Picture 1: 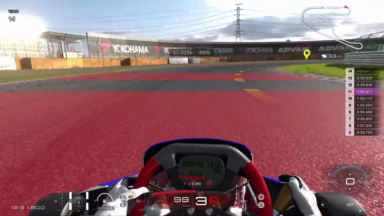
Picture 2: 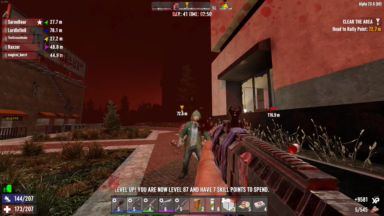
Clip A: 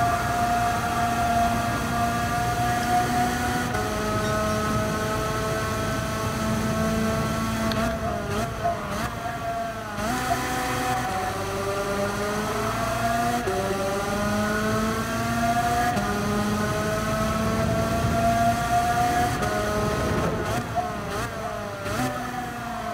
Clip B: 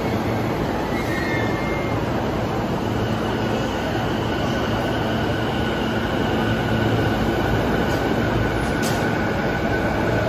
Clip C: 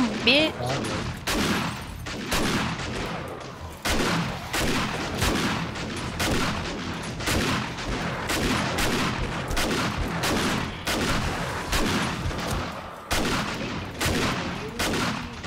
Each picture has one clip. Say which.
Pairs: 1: A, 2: C